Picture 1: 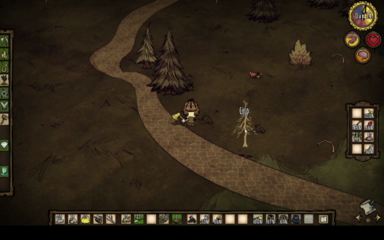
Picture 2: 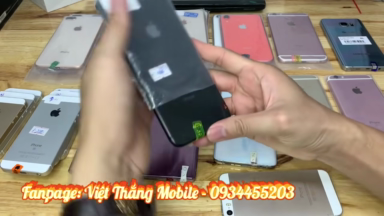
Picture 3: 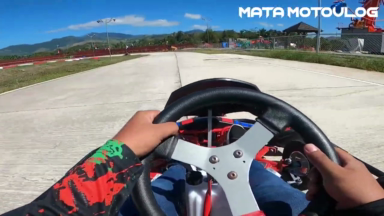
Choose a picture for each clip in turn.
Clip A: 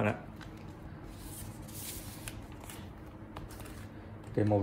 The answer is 2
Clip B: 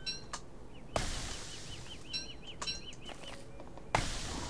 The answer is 1